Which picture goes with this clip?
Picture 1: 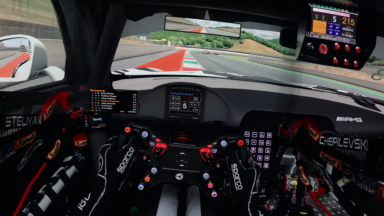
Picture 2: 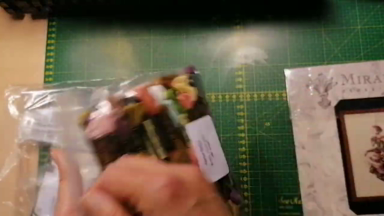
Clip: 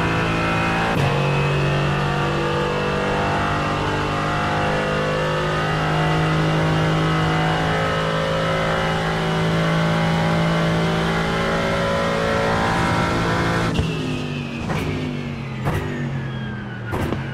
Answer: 1